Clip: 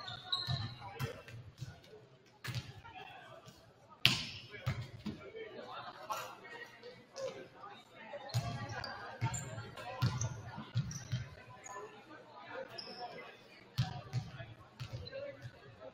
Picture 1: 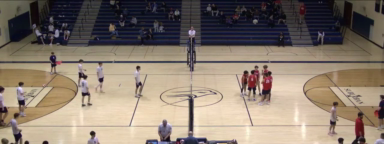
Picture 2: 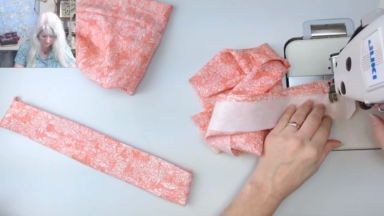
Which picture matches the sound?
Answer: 1